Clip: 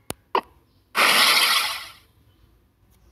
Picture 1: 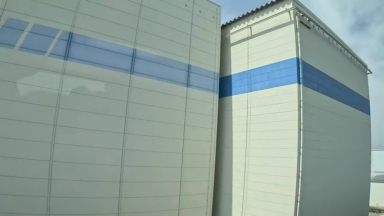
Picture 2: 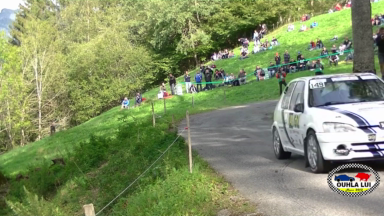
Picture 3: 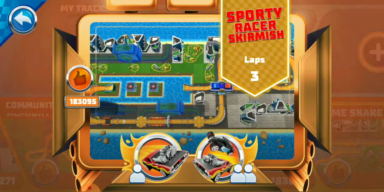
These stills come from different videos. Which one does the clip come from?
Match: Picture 3